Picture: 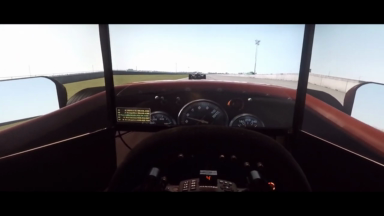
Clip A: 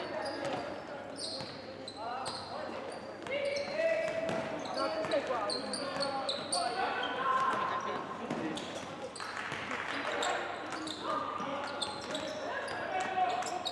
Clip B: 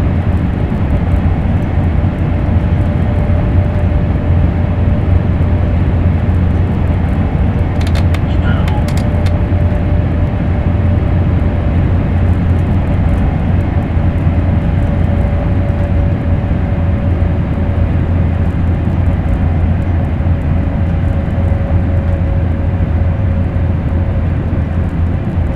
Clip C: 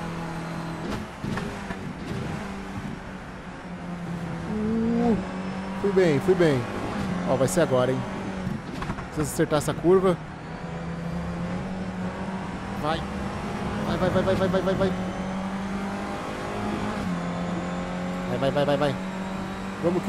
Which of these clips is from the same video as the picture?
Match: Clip C